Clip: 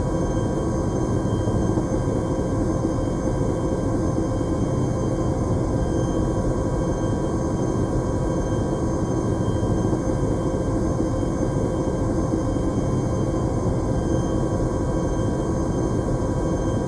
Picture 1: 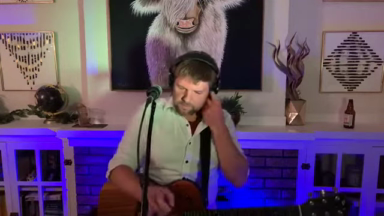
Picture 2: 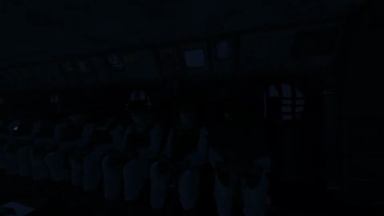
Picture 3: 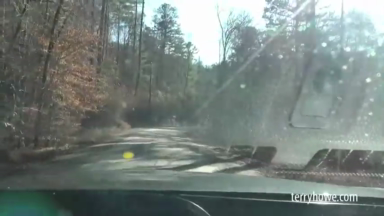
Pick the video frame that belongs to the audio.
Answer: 2